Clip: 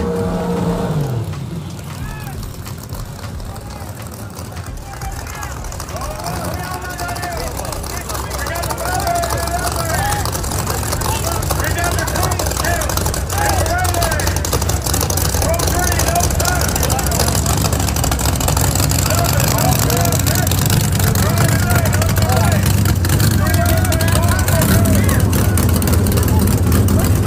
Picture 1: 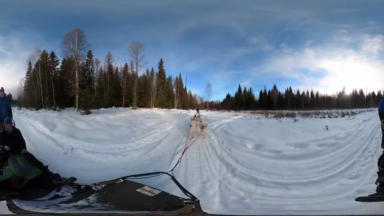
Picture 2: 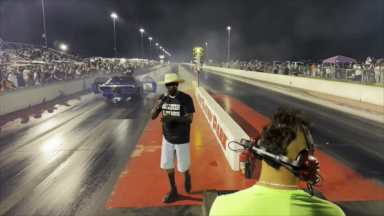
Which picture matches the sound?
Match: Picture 2